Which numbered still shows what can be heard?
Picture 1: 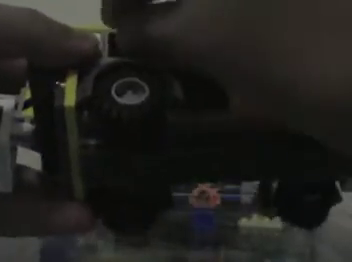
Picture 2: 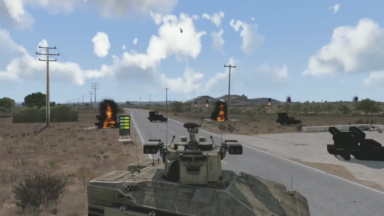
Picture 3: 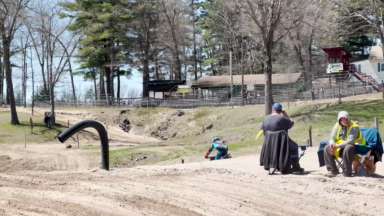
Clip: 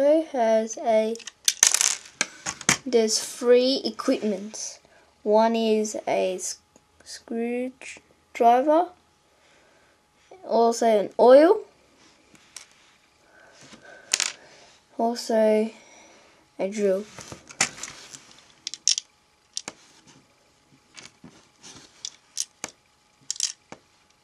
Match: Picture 1